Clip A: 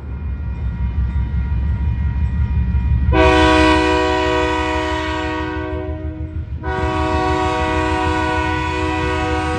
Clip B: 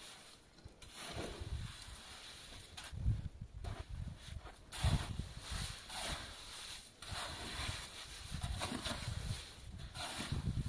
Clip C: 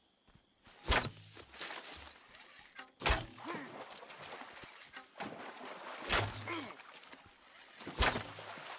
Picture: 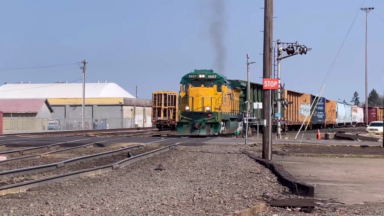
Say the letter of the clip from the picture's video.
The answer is A